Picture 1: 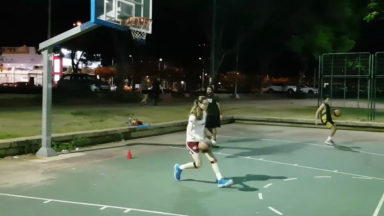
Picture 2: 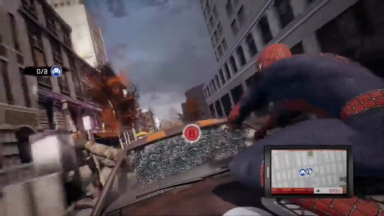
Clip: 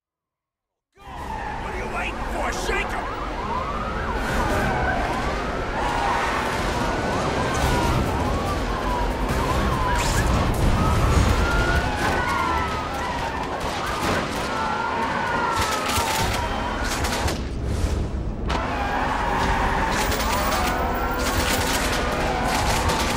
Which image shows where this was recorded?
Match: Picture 2